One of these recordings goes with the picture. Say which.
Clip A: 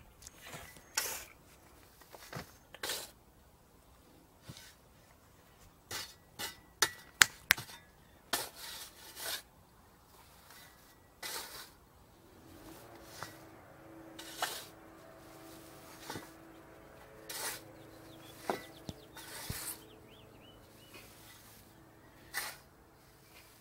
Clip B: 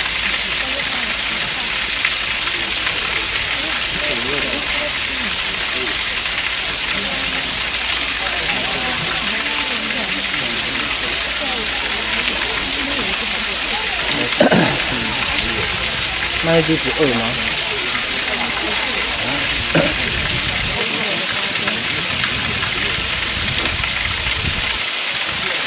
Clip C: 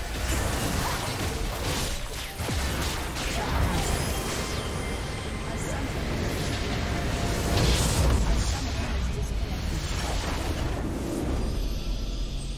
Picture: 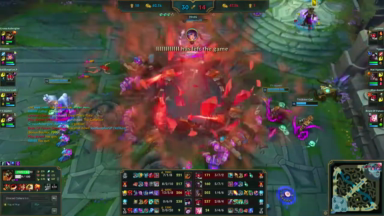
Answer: C